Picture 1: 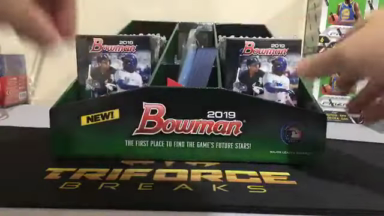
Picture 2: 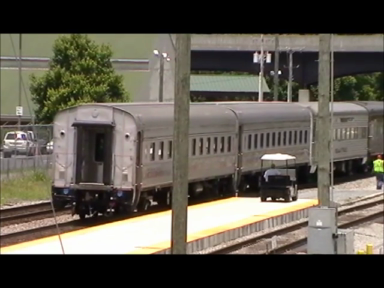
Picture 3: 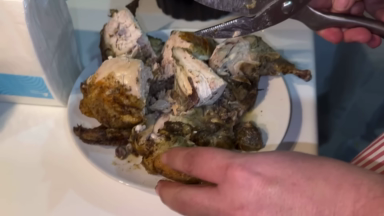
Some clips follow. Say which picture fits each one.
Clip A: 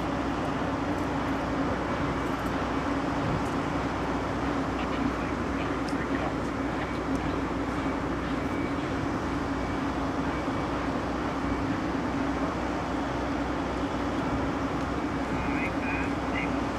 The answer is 2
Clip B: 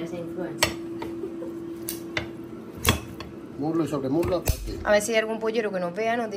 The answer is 3